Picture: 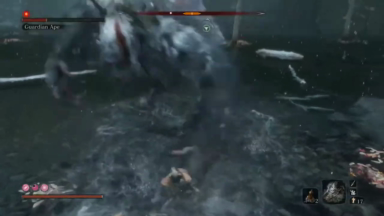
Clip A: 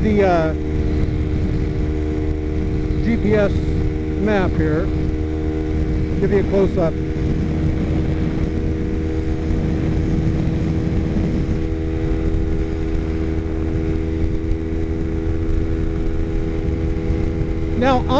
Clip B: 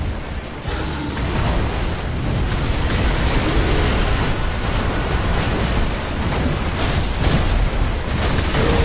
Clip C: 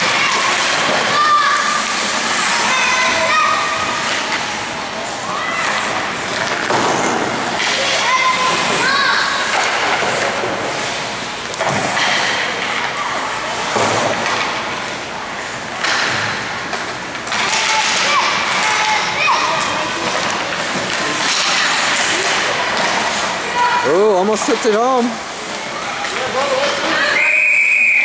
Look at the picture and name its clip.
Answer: B